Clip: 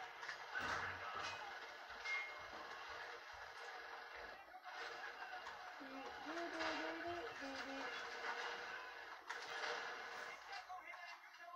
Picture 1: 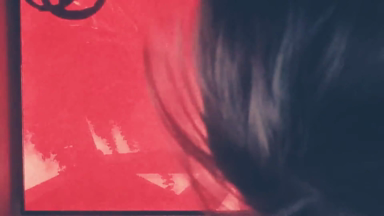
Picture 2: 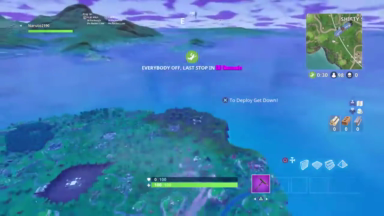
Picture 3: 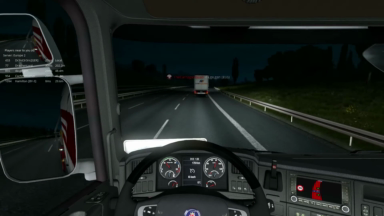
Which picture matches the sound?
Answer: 1